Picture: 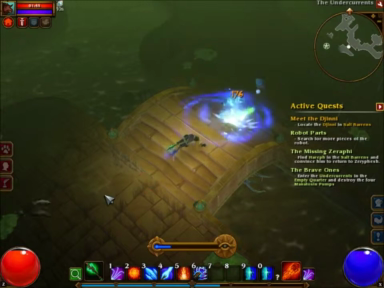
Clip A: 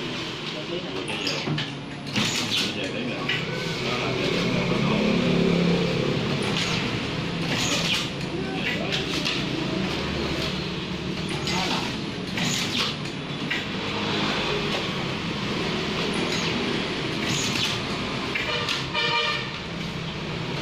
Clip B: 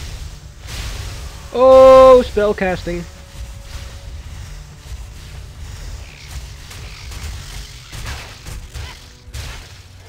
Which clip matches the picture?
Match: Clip B